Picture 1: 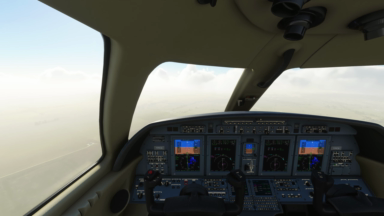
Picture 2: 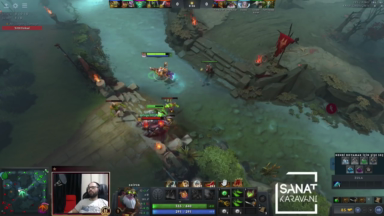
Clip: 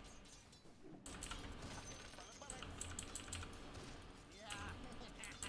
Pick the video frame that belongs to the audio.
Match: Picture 2